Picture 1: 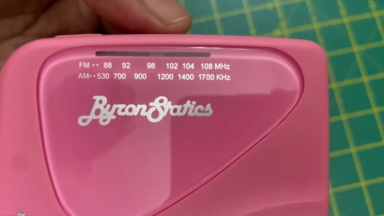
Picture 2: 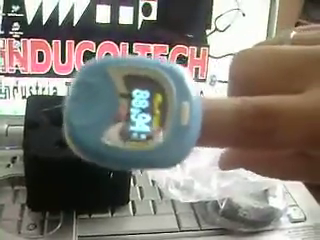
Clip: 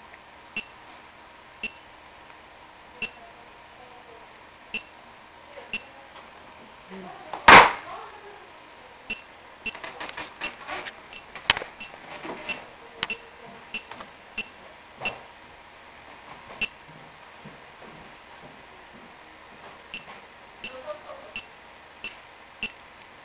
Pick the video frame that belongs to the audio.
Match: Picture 2